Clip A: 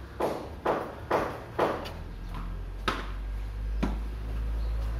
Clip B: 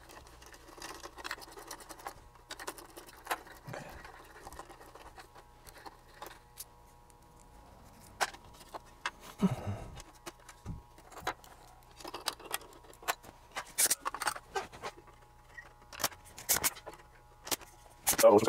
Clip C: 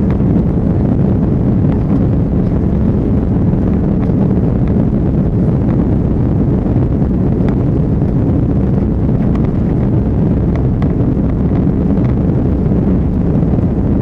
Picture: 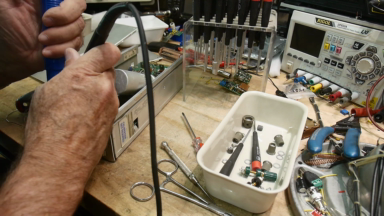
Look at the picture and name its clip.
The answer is B